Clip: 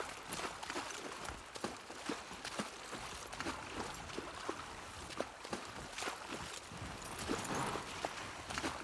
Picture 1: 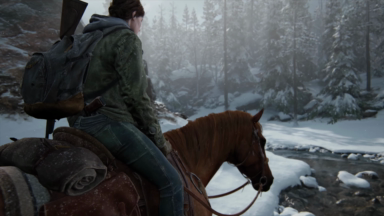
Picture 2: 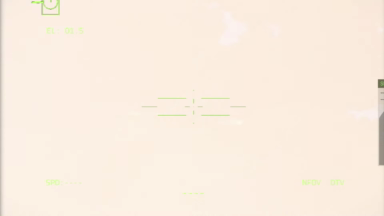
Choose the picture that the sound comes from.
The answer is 1